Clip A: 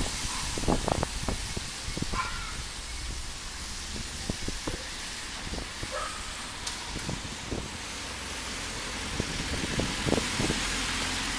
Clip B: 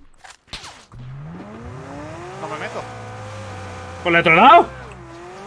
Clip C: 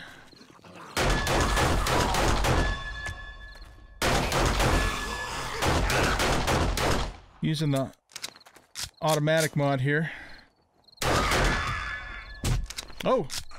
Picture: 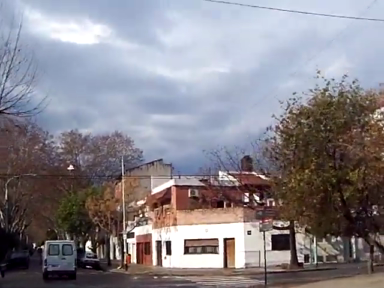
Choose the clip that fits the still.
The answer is A